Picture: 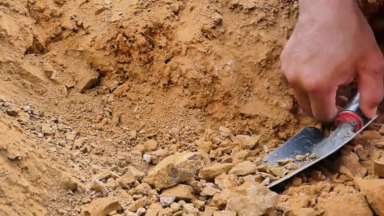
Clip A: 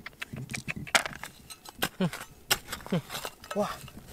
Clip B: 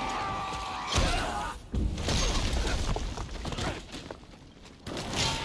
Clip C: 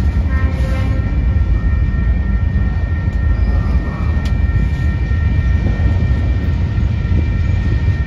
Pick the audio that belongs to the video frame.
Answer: A